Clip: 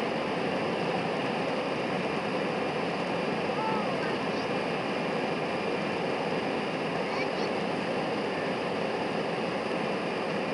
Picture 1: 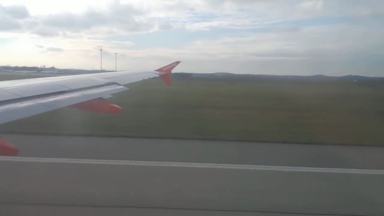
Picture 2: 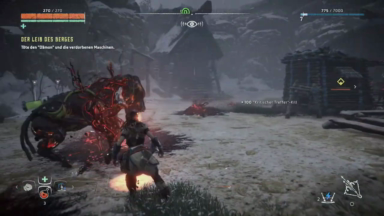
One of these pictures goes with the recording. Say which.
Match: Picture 1